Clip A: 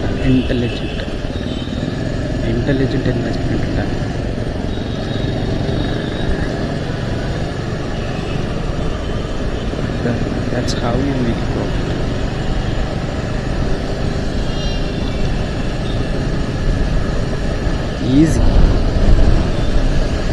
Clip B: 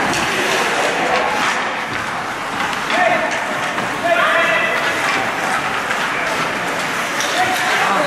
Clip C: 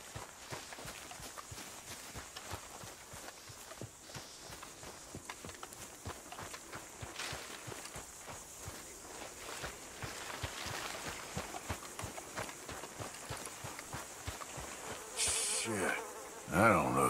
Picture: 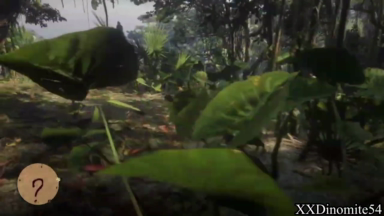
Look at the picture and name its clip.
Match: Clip C